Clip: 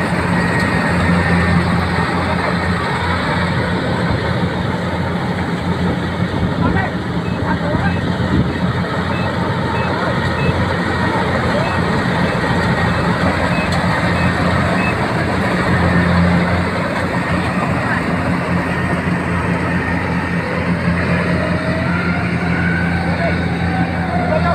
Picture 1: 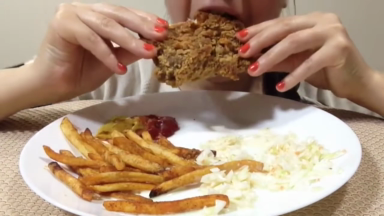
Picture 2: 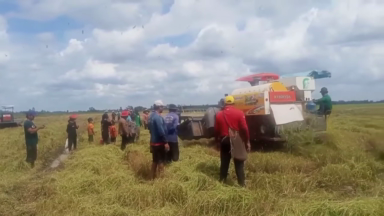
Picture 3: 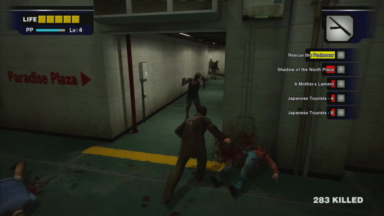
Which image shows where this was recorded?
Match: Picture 2